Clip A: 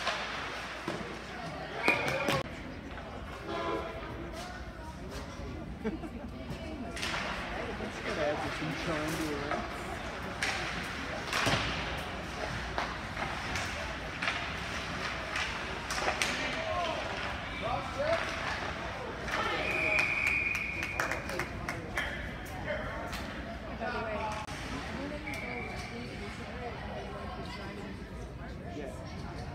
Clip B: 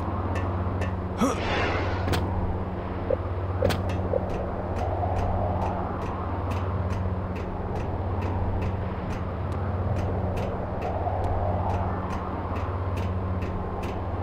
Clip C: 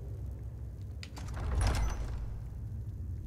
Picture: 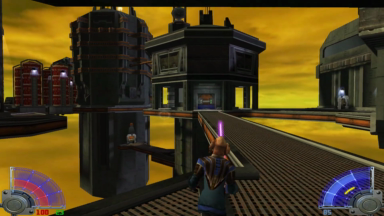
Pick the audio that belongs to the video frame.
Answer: B